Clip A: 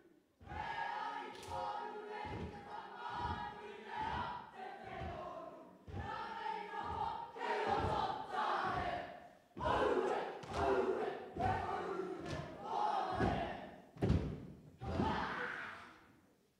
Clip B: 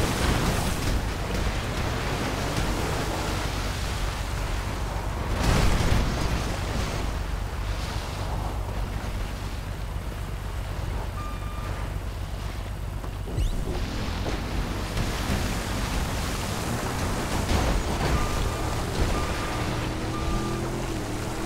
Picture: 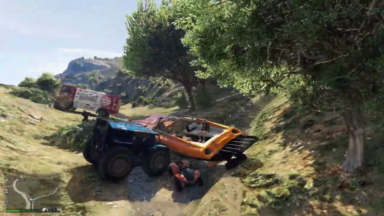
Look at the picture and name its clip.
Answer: B